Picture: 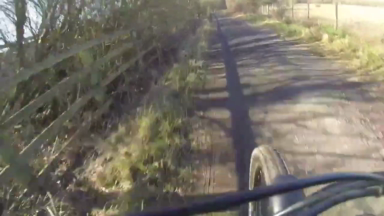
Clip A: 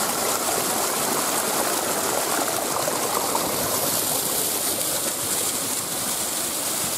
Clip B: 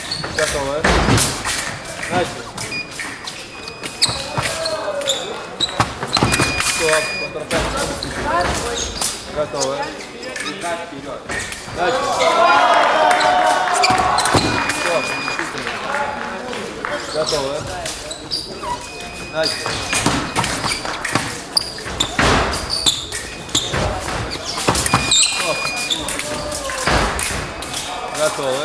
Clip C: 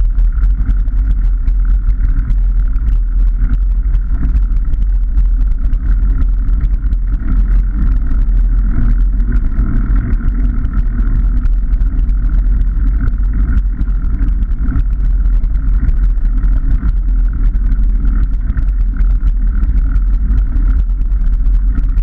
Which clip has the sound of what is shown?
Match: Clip C